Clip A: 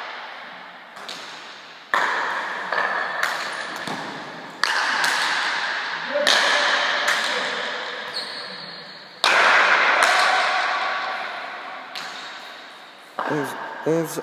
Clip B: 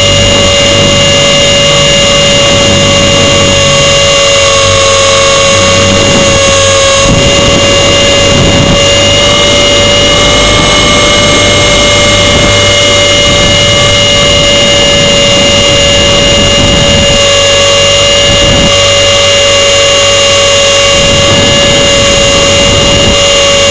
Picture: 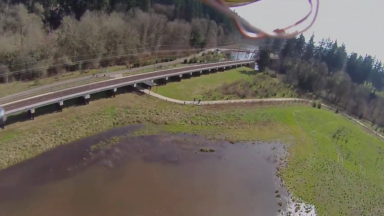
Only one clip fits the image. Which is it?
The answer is B